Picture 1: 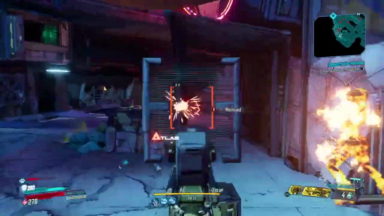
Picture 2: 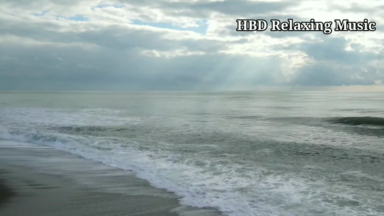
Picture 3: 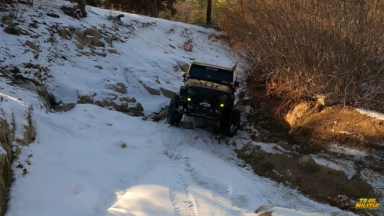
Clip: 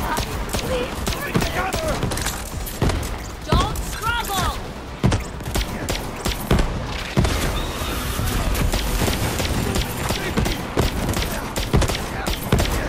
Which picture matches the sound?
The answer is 1